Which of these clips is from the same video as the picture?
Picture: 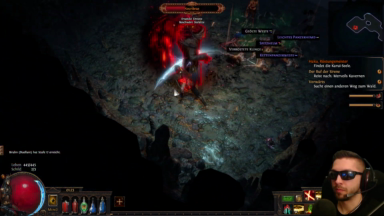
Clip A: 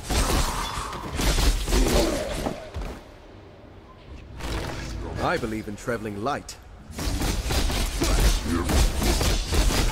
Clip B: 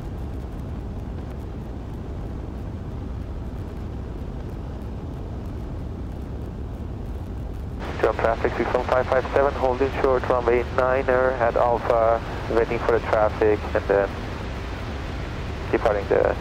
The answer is A